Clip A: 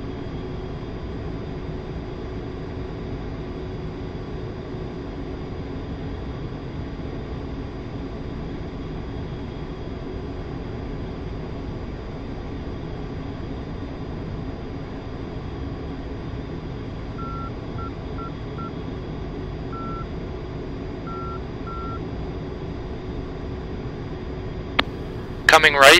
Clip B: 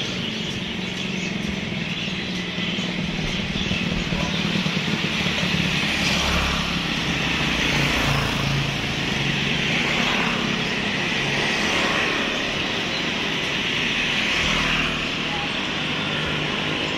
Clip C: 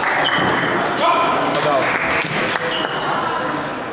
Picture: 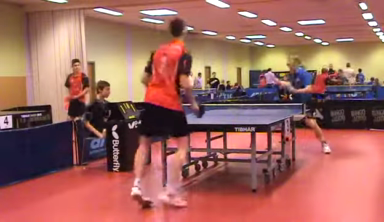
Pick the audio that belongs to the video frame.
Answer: C